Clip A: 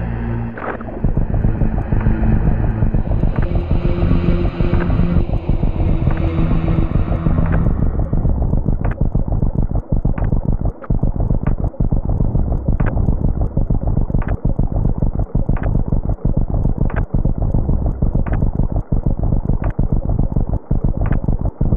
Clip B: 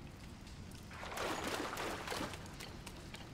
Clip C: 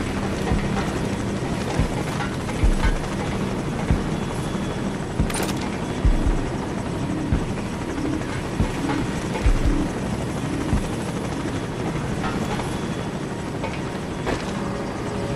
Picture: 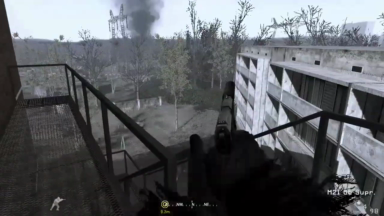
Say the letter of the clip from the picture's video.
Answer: C